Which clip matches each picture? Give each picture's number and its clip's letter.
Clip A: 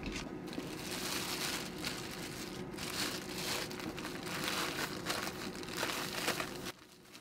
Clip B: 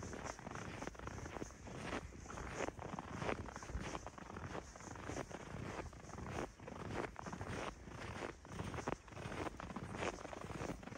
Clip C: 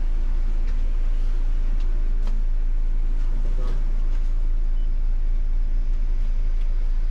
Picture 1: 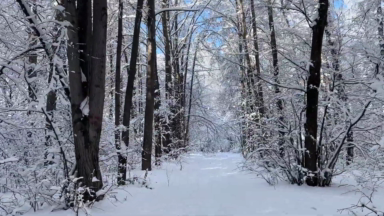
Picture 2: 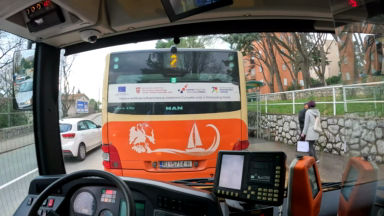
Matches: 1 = B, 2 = C